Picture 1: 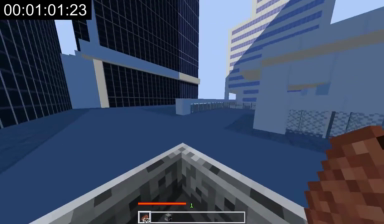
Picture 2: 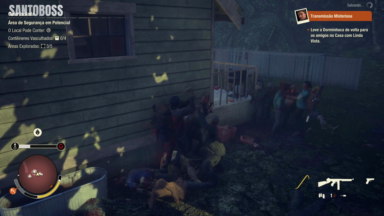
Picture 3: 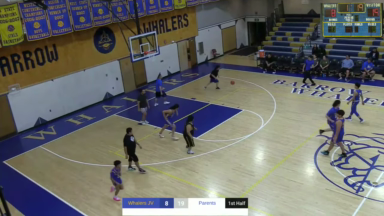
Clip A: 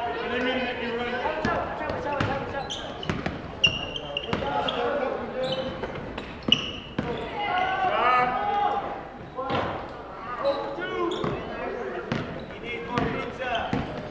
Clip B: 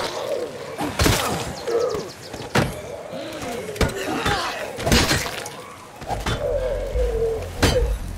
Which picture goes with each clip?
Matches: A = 3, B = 2